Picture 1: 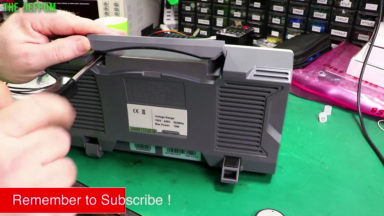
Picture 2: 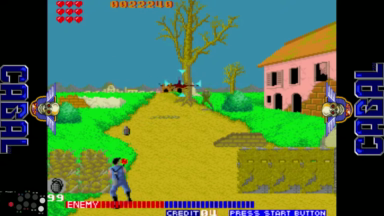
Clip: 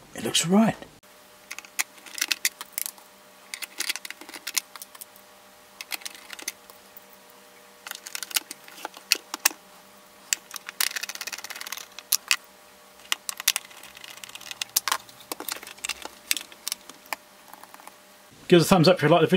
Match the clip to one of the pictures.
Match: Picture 1